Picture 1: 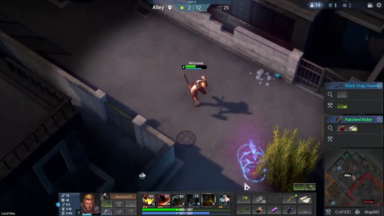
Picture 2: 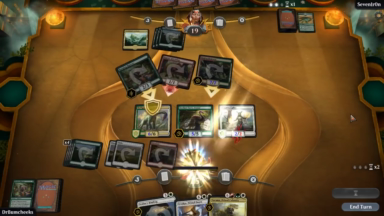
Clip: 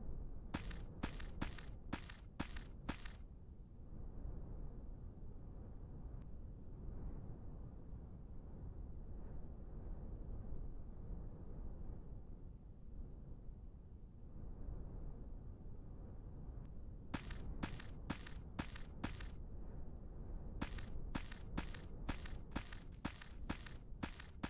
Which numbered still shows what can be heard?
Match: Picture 1